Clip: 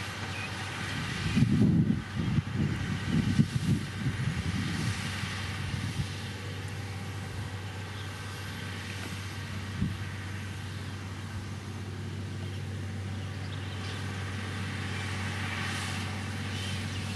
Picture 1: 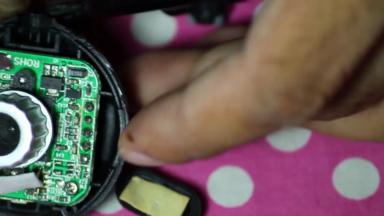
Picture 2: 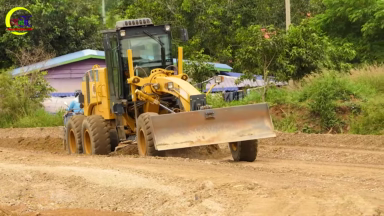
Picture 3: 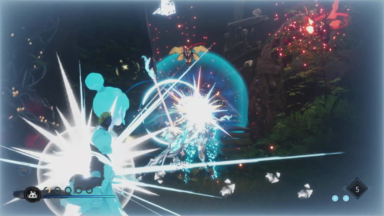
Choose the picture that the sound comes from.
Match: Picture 2